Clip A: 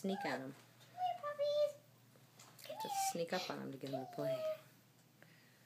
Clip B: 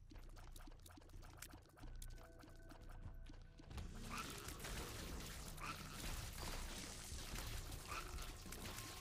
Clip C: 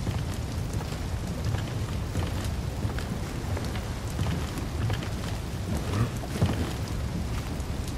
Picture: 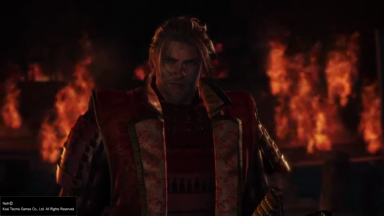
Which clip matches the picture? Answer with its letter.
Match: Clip C